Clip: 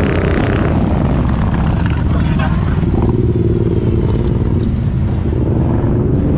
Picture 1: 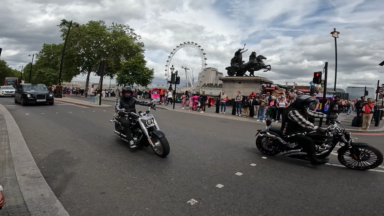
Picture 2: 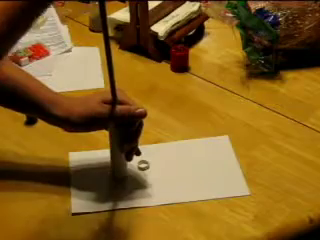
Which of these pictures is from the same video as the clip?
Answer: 1